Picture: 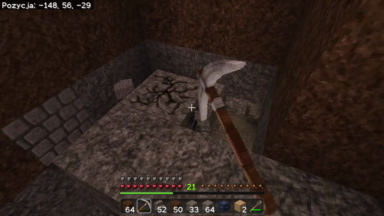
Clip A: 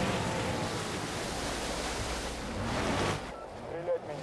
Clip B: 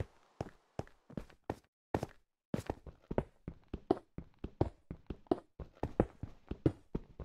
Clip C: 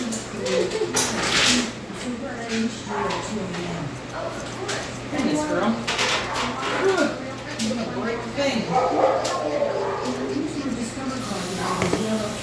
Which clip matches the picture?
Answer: B